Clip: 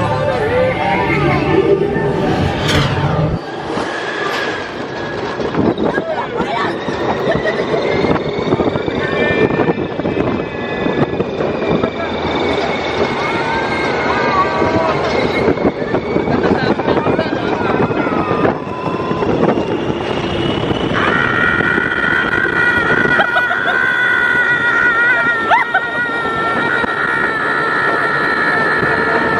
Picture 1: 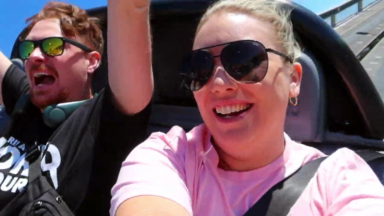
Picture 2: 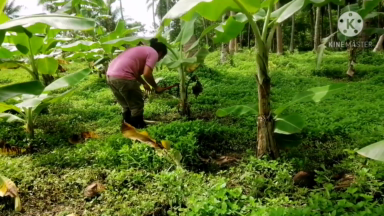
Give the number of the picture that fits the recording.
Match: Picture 1